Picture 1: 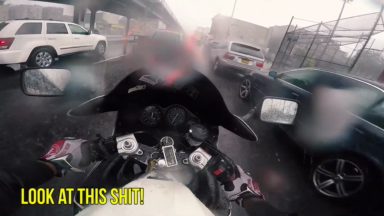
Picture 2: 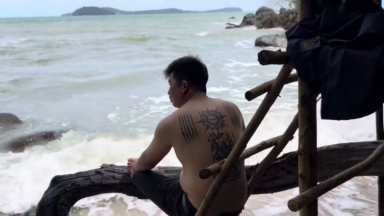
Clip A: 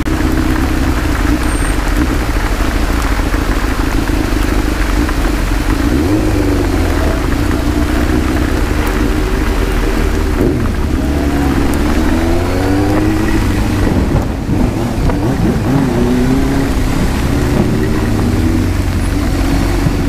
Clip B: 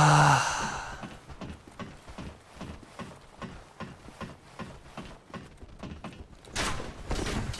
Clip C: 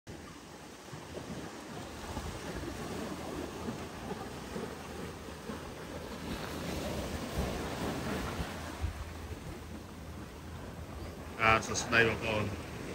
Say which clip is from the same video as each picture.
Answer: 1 A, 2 C